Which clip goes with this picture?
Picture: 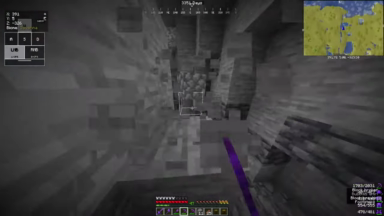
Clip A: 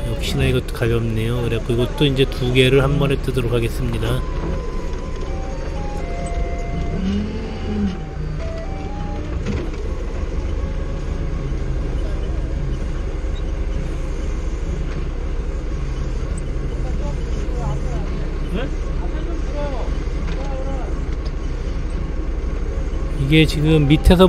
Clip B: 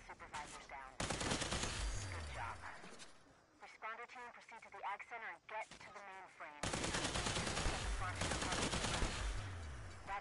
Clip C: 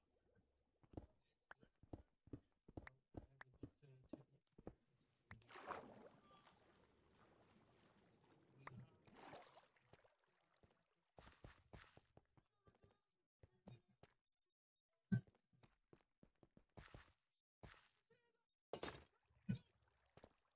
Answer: C